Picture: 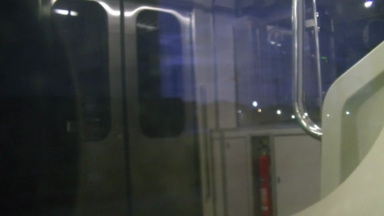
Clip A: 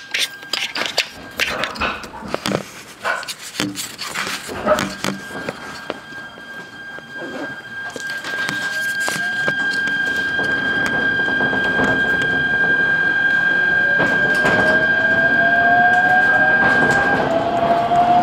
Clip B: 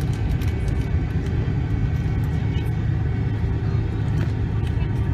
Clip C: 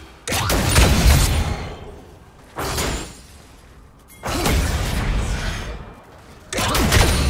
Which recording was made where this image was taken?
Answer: A